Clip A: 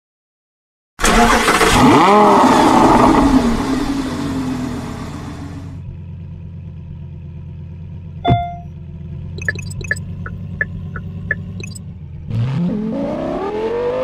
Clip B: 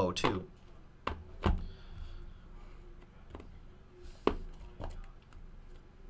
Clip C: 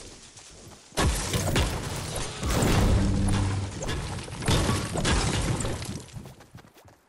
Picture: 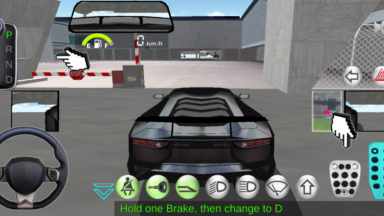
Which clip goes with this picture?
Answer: A